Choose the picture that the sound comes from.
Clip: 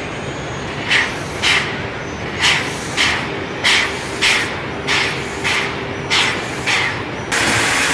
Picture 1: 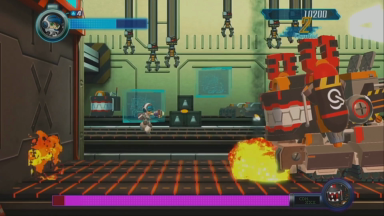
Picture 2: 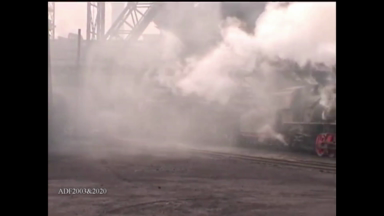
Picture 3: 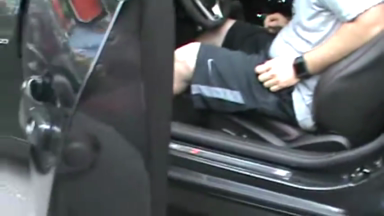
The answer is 2